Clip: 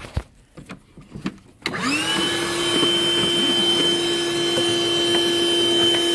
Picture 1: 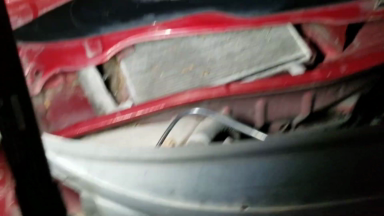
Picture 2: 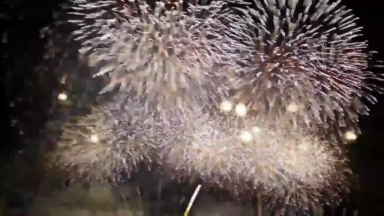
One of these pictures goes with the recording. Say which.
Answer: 1